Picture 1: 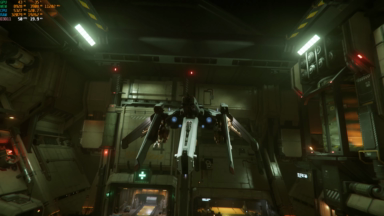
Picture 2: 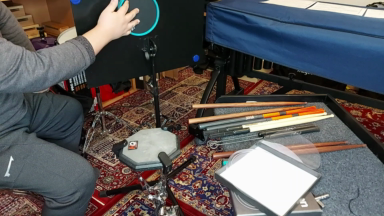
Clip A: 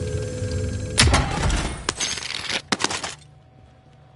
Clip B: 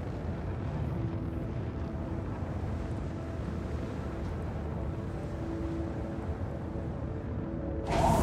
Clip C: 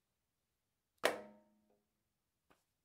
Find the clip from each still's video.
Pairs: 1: B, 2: C